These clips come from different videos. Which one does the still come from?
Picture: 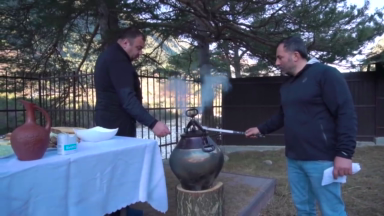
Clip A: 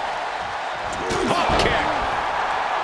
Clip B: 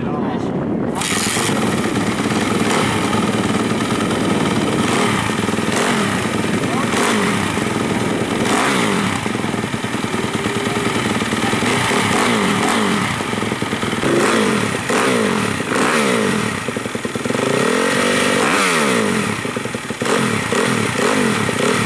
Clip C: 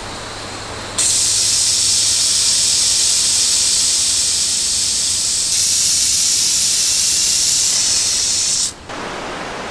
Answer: C